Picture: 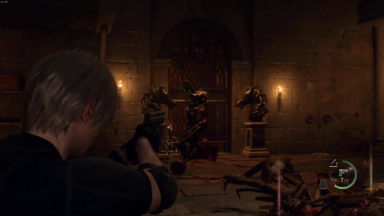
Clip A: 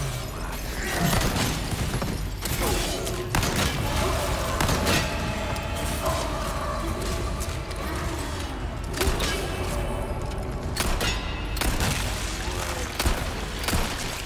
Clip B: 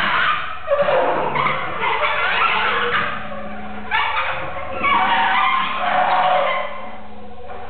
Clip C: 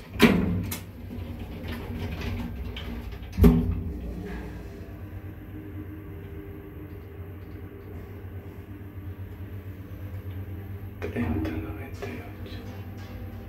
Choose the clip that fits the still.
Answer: A